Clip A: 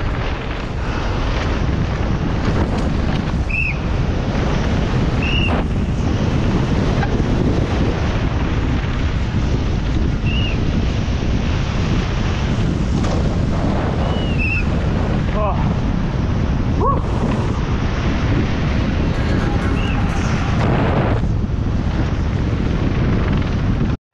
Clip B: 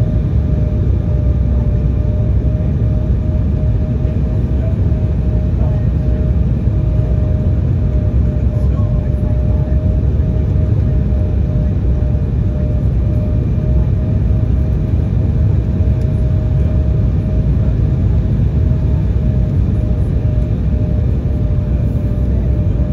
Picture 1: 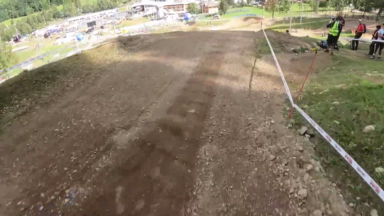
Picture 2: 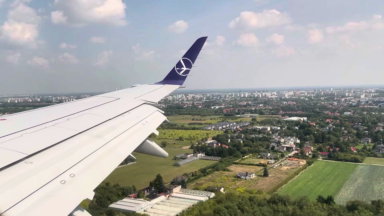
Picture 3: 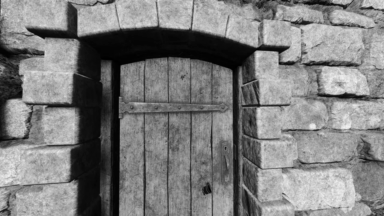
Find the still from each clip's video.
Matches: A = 1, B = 2